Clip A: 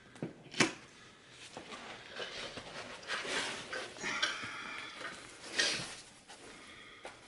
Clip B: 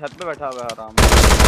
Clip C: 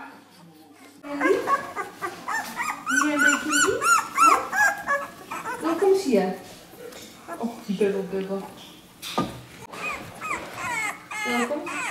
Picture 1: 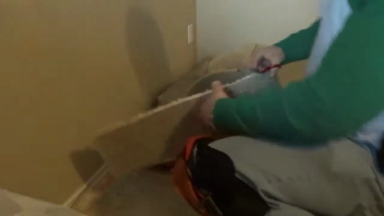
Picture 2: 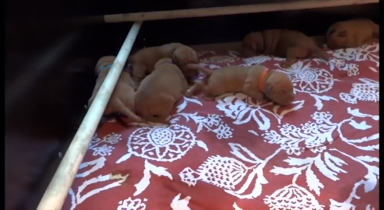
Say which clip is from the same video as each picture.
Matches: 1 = A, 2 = C